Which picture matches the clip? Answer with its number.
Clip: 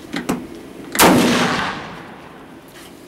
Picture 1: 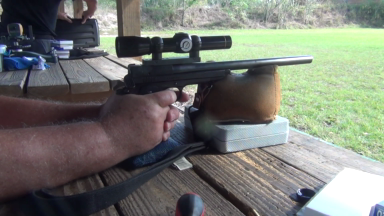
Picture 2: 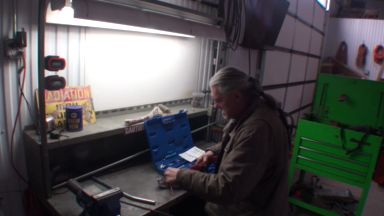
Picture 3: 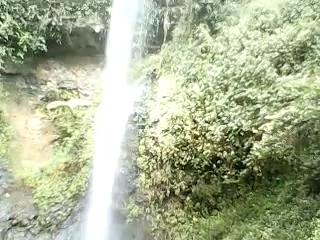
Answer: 1